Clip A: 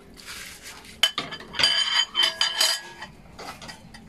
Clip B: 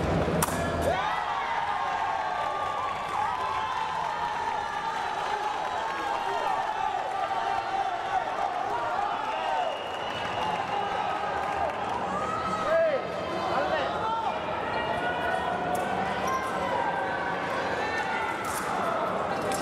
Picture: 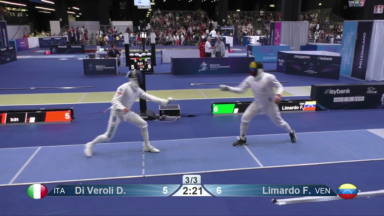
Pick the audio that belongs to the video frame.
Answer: B